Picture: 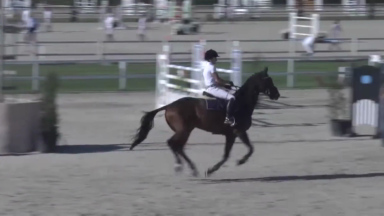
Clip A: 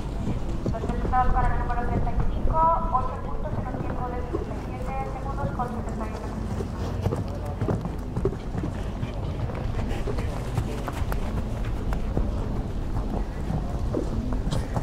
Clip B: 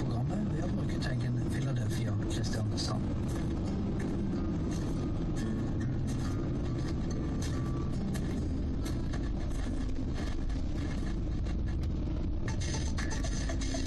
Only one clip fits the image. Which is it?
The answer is A